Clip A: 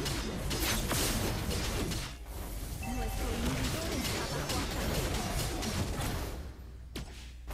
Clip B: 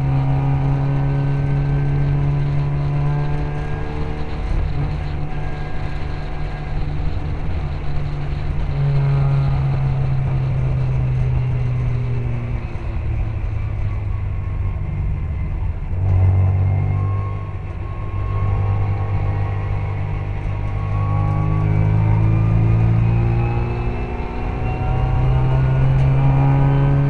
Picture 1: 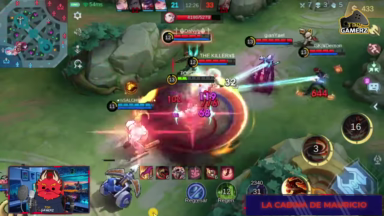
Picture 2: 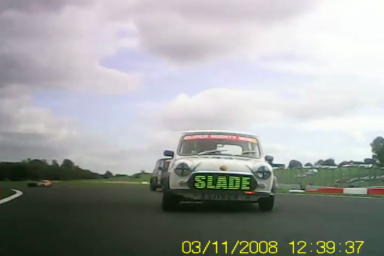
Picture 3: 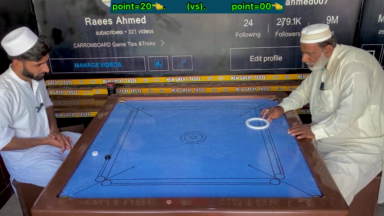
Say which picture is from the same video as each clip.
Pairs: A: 1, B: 2